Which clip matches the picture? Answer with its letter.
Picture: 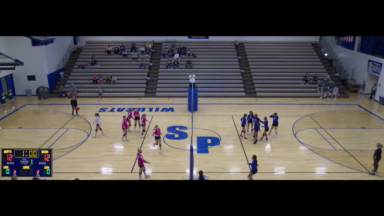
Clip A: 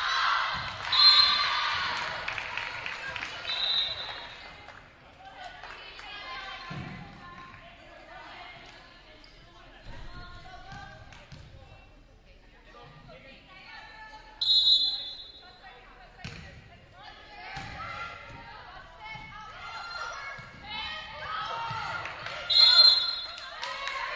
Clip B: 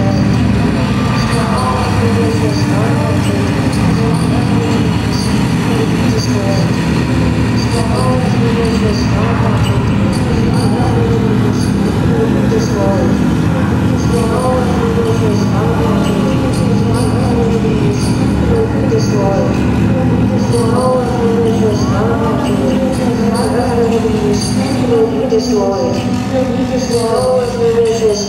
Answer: A